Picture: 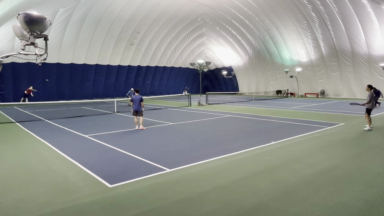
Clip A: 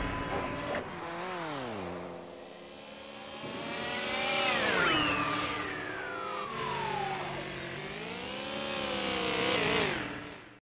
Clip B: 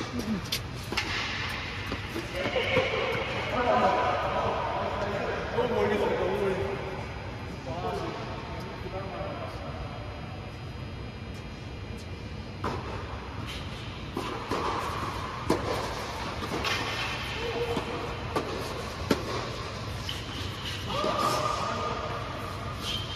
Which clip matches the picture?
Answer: B